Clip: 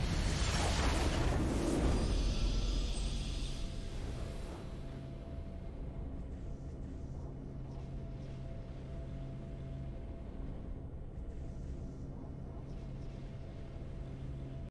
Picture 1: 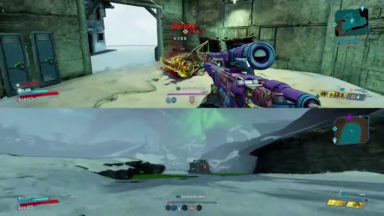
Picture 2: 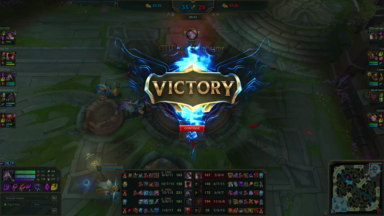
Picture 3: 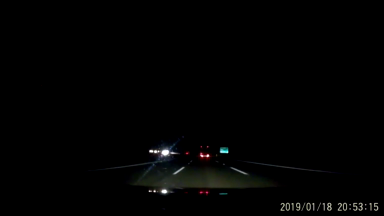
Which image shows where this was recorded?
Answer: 2